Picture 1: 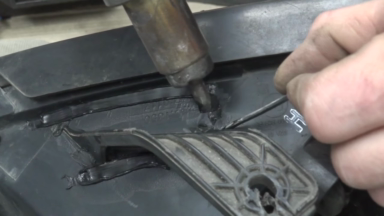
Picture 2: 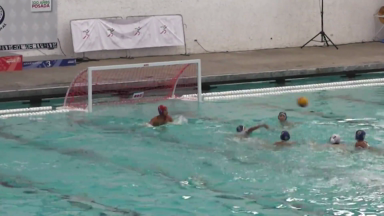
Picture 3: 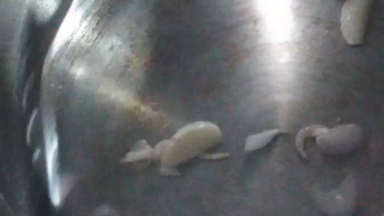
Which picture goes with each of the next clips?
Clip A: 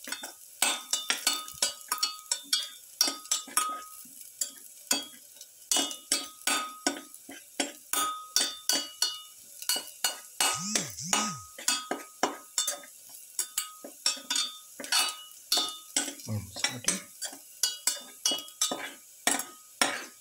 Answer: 3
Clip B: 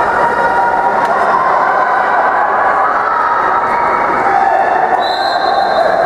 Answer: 2